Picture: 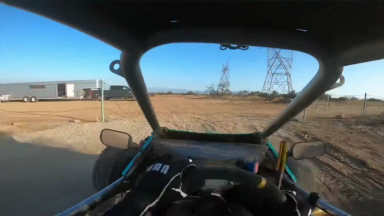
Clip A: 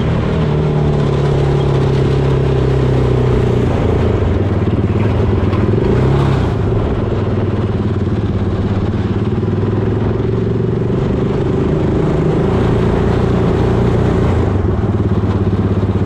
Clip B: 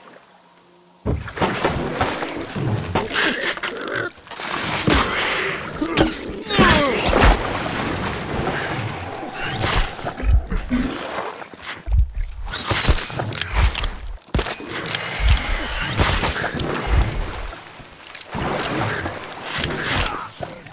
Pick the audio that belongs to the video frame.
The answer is A